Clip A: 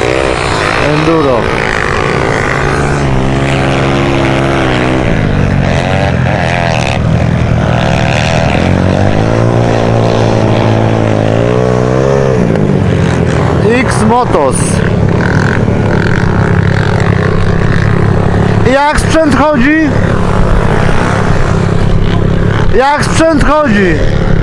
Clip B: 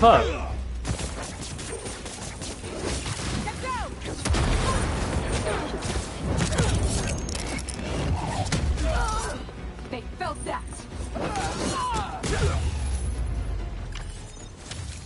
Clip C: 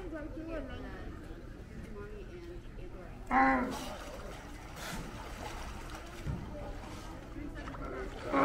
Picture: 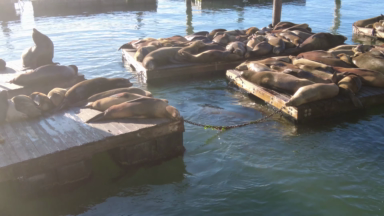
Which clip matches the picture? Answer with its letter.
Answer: C